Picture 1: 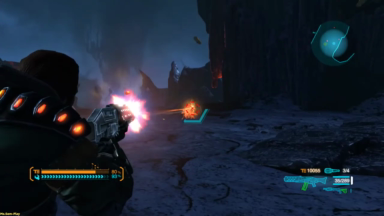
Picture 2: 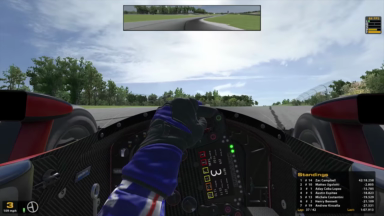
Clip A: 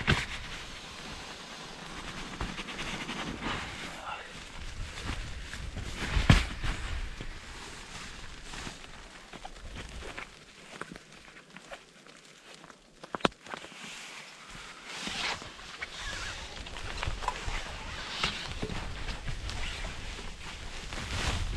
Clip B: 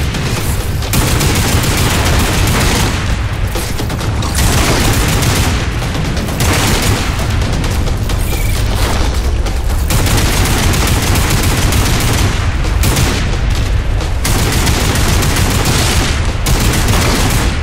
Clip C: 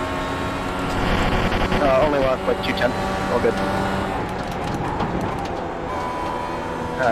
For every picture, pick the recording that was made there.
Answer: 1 B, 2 C